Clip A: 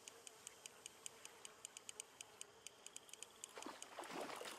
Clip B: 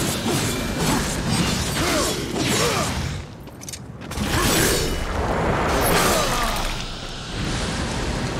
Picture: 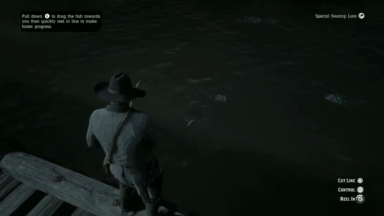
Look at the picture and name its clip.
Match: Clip A